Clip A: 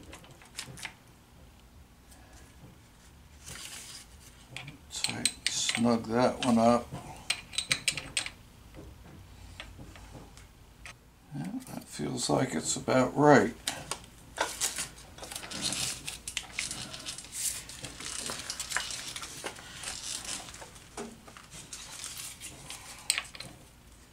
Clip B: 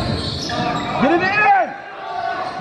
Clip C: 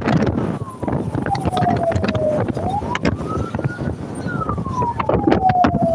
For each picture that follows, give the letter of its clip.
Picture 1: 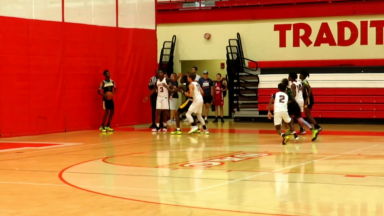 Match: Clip B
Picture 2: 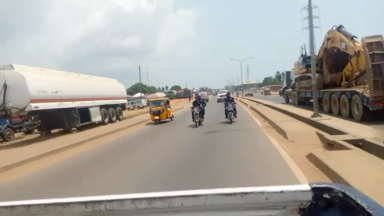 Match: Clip C